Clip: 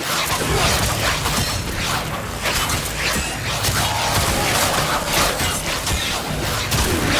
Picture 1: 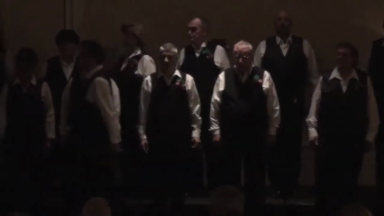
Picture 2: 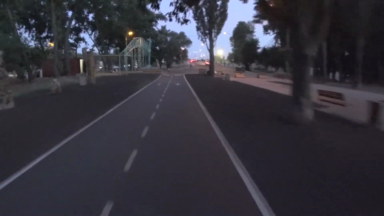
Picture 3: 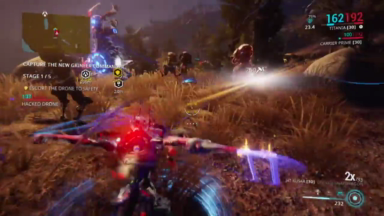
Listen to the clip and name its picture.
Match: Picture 3